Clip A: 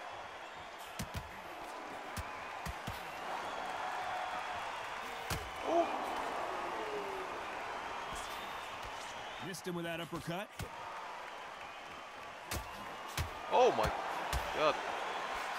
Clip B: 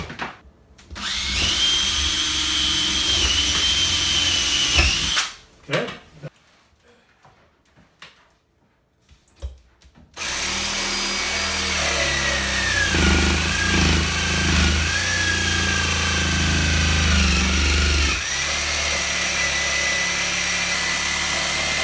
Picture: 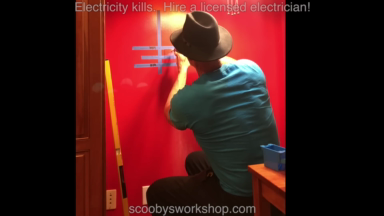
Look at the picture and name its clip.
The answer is B